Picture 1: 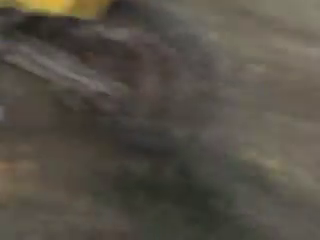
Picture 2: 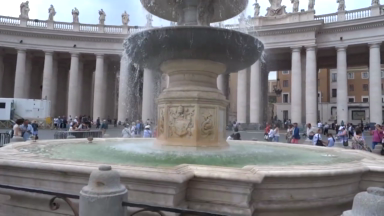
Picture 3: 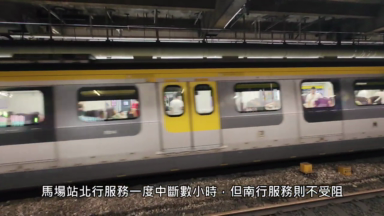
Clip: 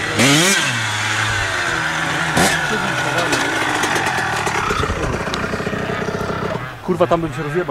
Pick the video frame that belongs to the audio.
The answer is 1